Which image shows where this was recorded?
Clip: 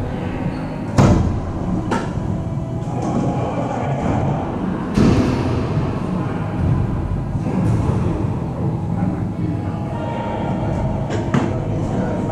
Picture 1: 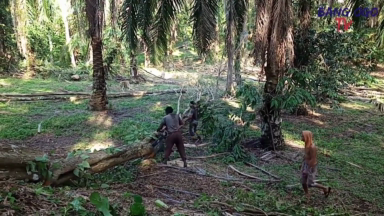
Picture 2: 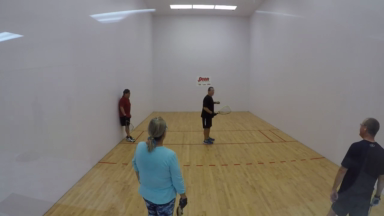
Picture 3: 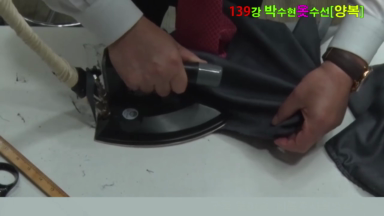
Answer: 2